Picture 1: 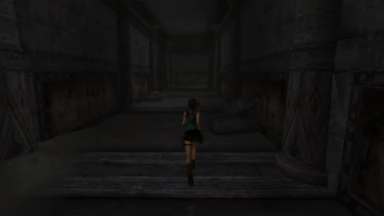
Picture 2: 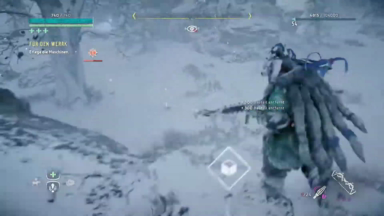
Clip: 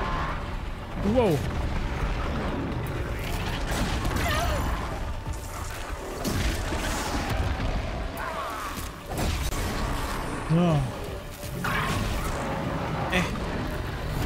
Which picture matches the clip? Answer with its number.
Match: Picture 2